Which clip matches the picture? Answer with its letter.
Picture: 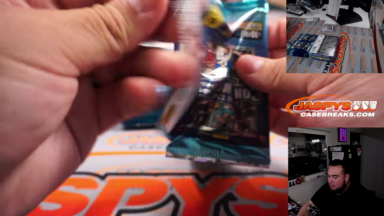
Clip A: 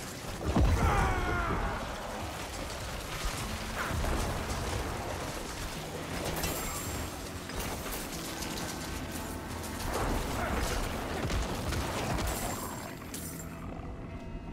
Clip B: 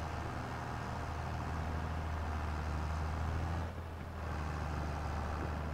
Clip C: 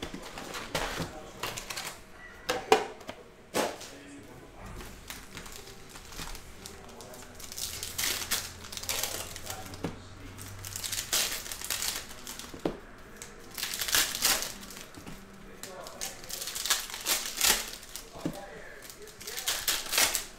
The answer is C